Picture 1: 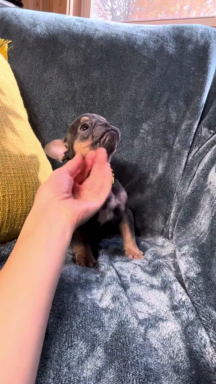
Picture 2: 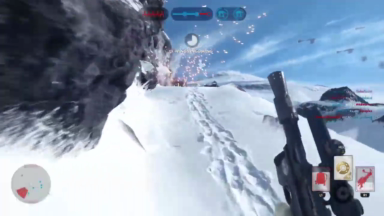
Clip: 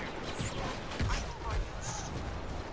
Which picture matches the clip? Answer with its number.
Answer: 2